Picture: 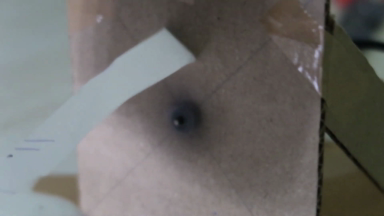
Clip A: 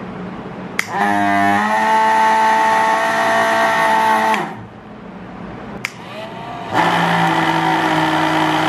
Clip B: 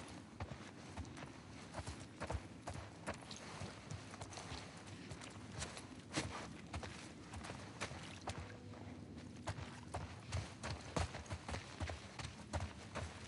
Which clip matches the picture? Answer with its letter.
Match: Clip A